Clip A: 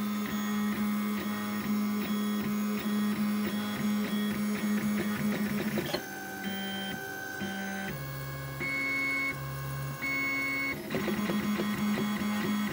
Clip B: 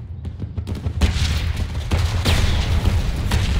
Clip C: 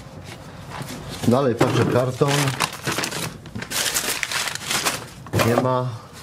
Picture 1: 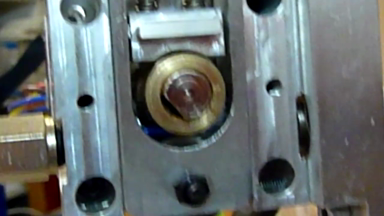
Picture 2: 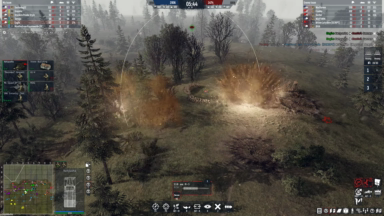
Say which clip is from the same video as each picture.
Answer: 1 A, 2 B